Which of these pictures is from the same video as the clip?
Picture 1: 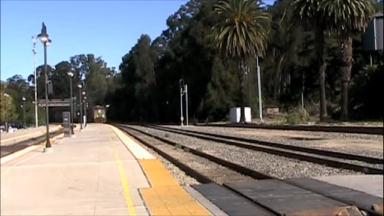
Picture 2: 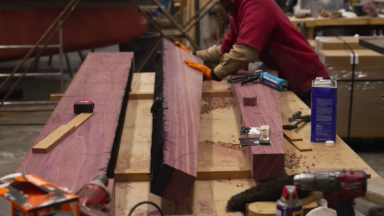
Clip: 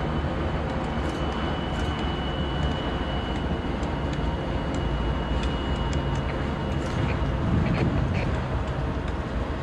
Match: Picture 1